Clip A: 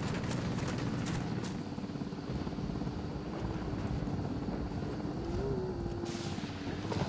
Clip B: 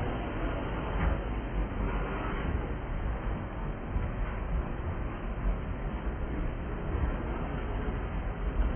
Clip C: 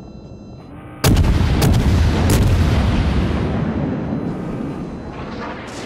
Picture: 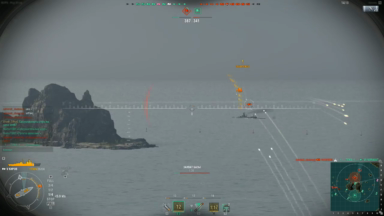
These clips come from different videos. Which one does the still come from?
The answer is C